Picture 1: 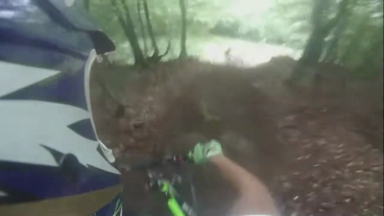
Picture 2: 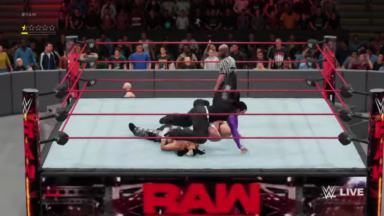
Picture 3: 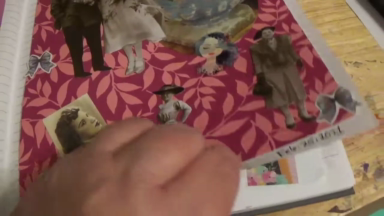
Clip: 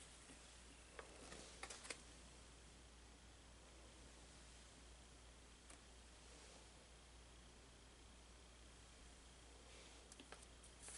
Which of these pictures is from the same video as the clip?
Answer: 3